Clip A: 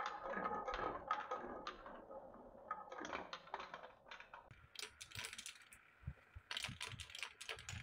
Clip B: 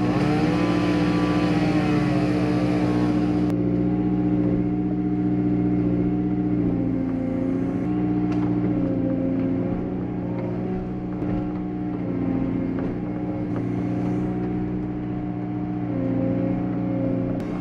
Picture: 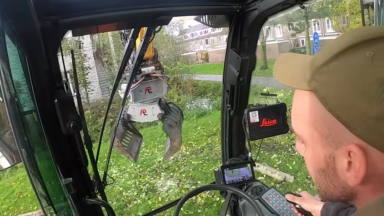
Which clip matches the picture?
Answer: B